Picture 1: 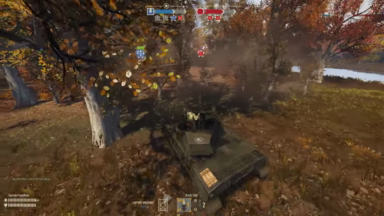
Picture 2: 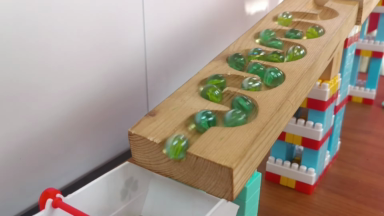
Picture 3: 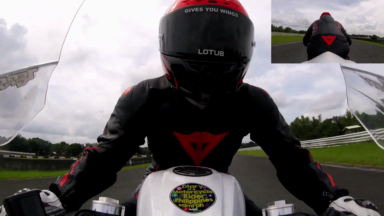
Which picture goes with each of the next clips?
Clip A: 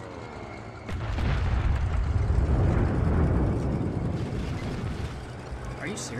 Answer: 1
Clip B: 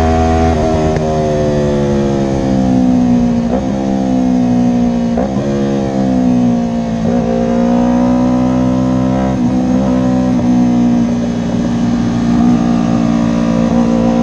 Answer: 3